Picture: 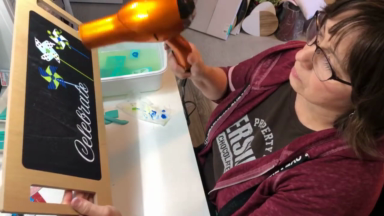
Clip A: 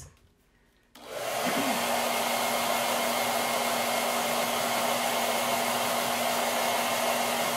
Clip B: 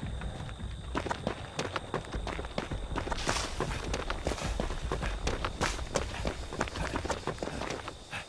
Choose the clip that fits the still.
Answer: A